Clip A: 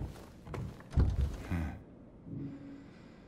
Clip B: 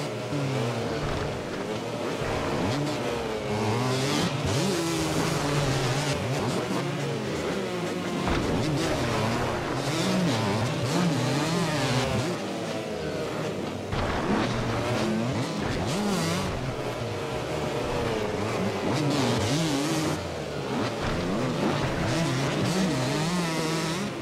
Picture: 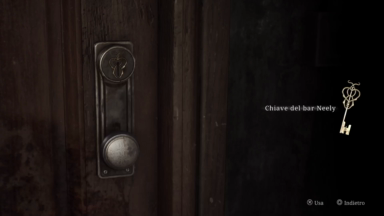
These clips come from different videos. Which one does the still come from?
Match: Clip A